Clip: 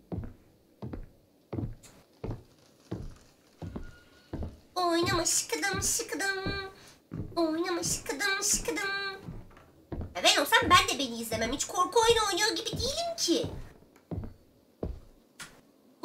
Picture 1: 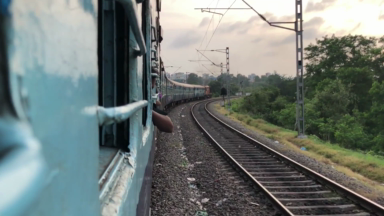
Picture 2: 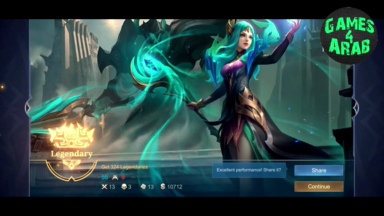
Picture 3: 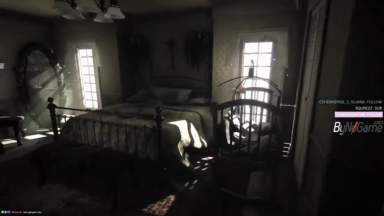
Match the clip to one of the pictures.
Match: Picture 3